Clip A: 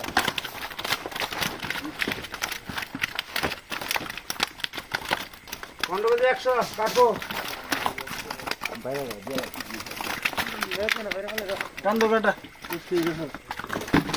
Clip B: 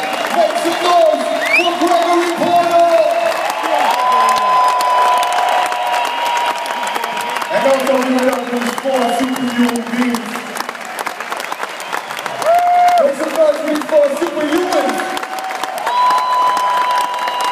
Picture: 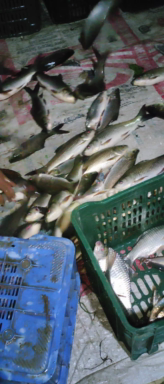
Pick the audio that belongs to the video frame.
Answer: A